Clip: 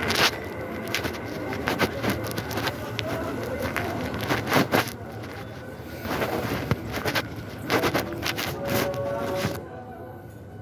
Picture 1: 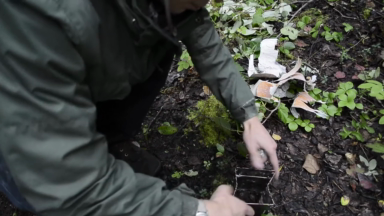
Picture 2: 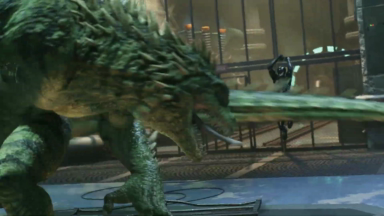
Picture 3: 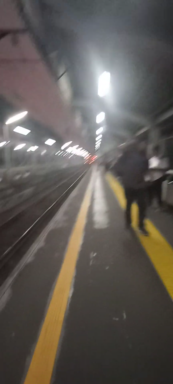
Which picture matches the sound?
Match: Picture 3